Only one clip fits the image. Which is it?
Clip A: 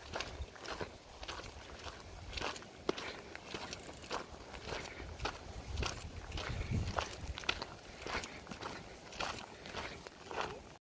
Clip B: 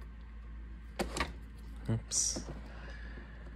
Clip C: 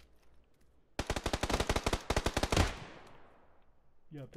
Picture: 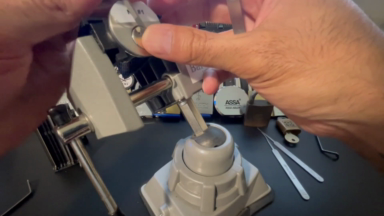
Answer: B